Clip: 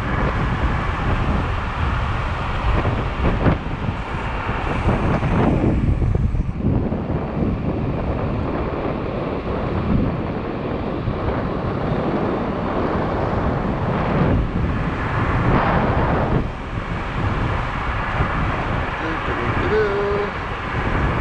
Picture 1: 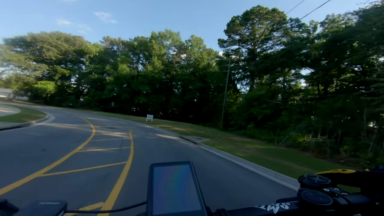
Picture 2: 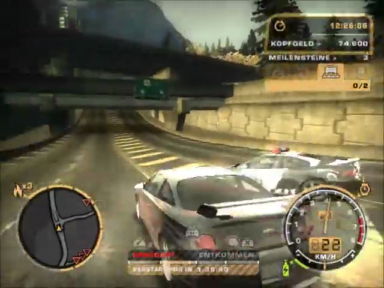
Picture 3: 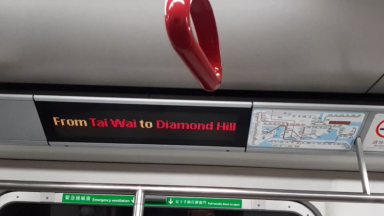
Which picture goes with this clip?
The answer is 1